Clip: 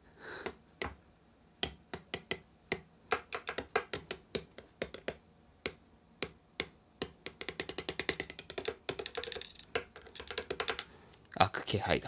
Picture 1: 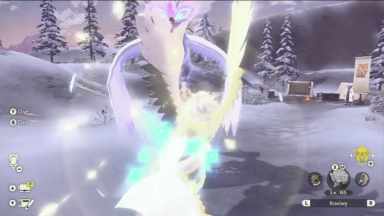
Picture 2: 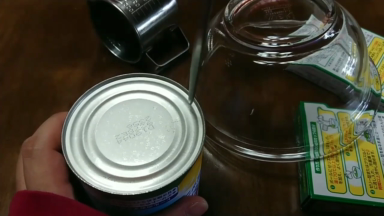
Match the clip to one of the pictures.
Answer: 2